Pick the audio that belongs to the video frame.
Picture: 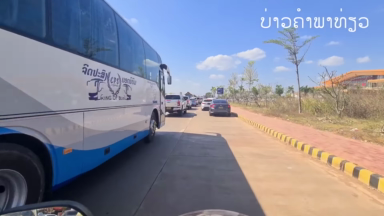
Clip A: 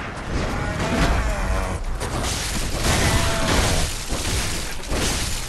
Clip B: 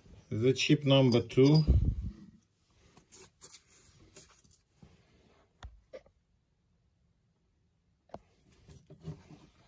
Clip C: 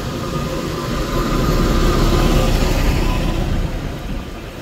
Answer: C